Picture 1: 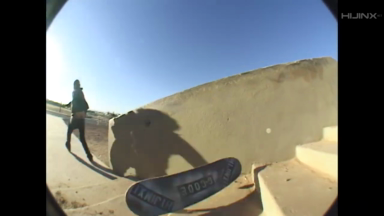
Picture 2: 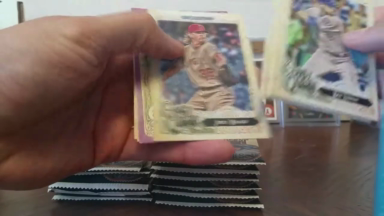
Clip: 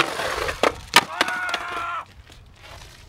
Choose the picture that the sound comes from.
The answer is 1